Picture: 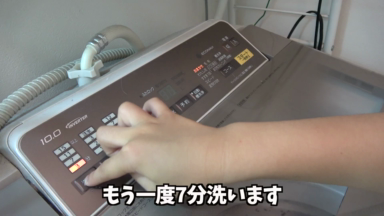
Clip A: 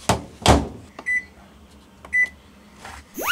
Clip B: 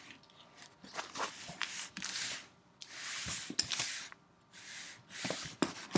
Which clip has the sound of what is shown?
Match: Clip A